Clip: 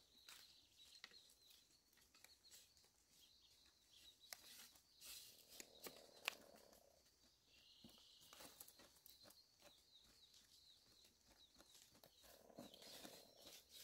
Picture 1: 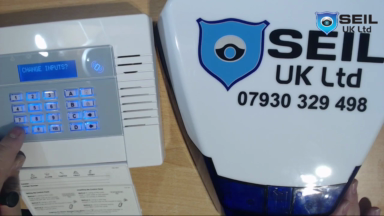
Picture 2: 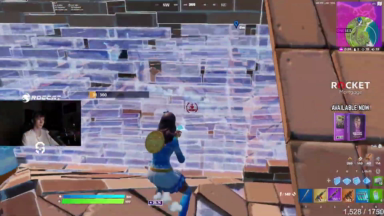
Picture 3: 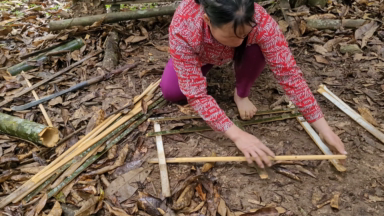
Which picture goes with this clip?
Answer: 3